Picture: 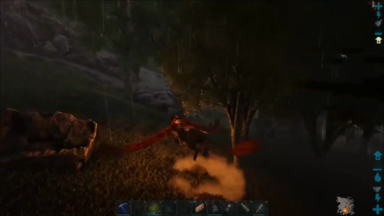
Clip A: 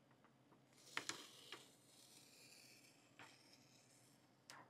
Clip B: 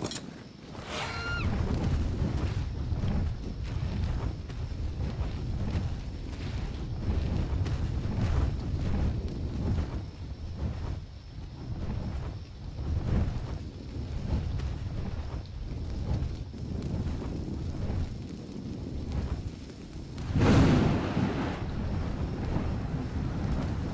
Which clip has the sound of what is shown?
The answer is B